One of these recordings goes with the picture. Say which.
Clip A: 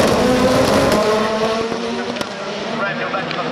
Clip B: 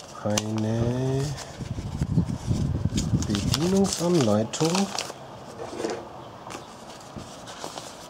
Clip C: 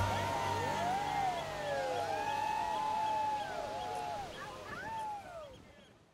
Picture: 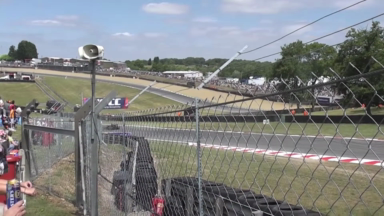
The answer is A